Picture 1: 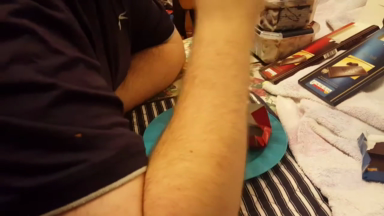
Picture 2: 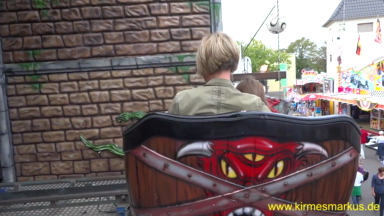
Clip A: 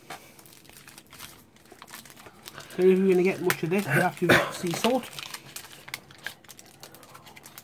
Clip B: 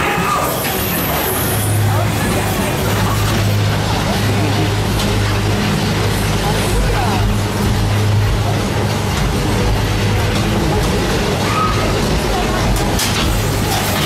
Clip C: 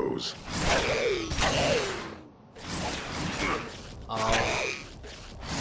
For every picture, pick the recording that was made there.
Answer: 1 A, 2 B